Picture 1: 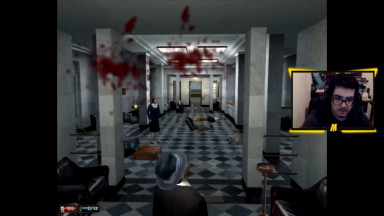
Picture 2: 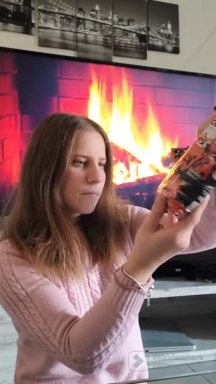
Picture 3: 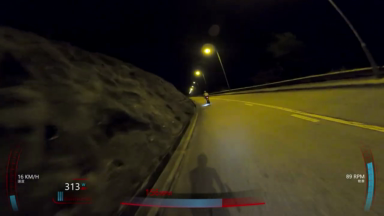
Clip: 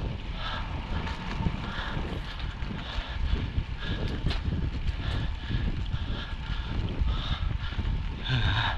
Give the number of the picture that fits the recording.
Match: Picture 3